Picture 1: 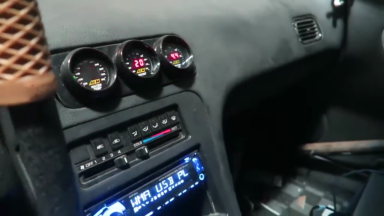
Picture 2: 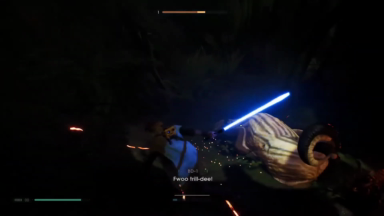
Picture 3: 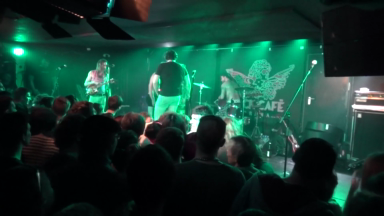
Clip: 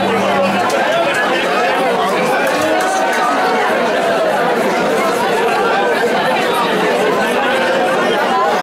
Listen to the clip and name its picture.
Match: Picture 3